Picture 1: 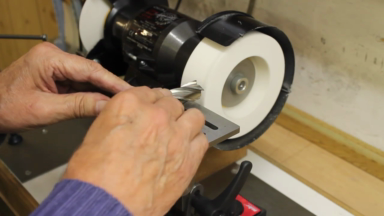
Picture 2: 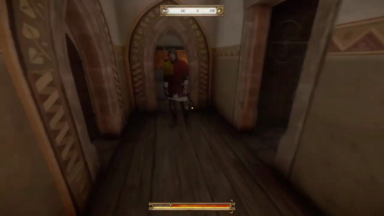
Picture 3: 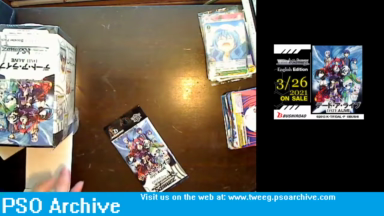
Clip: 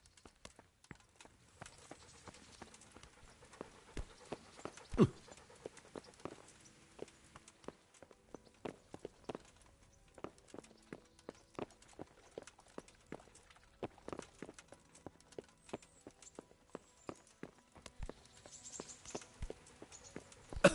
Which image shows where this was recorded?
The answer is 2